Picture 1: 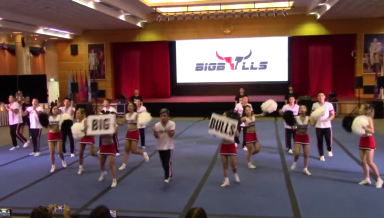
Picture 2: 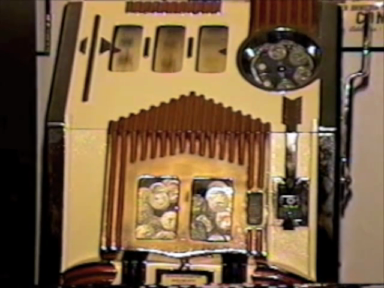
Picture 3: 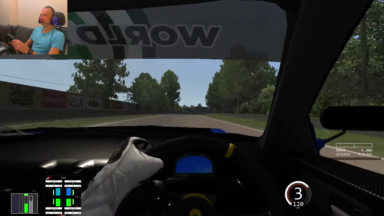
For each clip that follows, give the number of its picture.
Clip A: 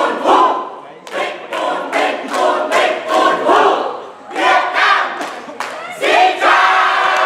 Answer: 1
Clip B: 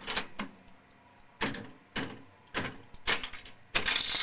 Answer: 2